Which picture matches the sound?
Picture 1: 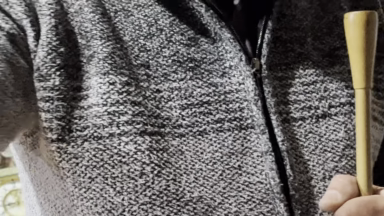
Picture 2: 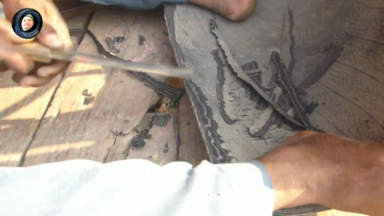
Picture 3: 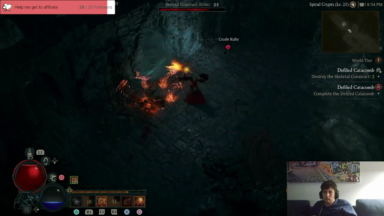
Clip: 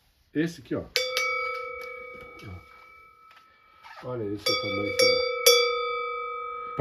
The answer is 1